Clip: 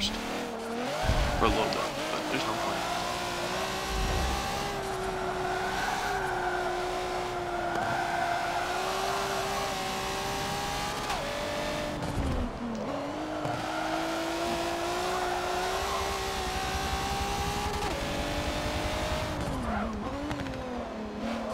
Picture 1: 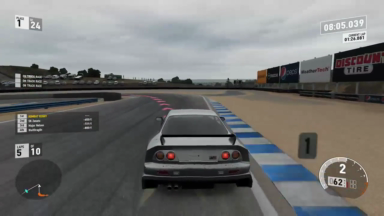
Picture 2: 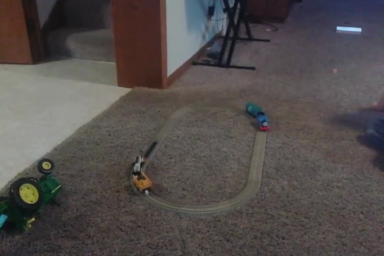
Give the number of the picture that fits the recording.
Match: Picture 1